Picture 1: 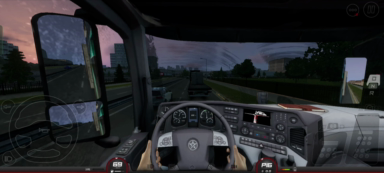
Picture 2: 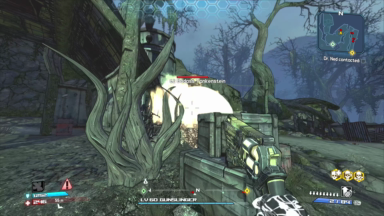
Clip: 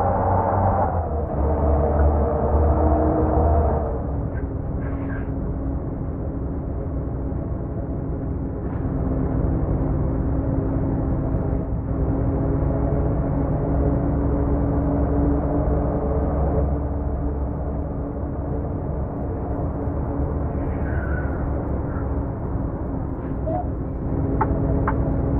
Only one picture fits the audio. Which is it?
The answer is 1